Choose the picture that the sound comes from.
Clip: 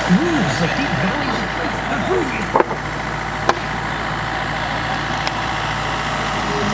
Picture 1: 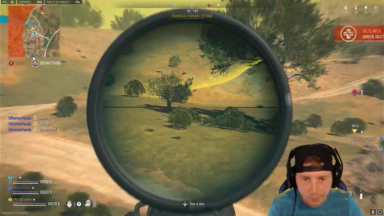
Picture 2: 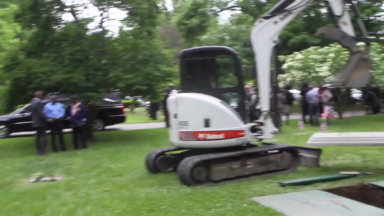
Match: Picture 2